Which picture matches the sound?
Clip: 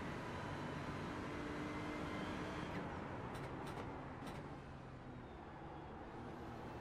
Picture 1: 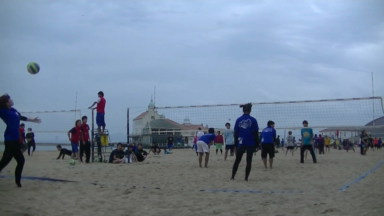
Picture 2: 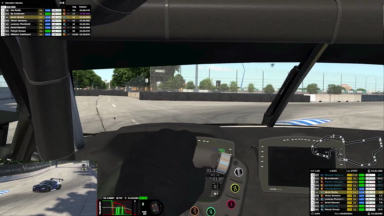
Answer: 2